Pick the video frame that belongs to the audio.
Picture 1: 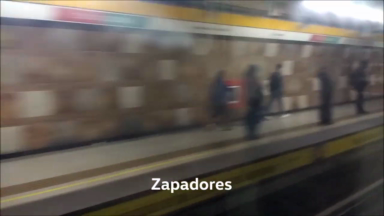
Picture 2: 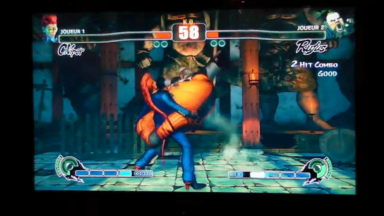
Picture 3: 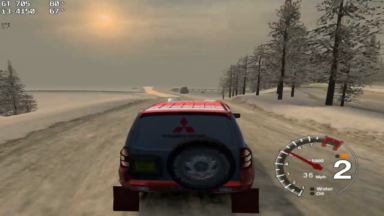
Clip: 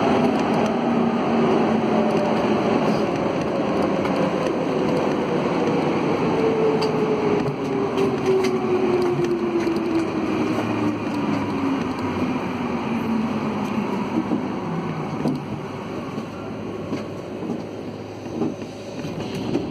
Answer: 1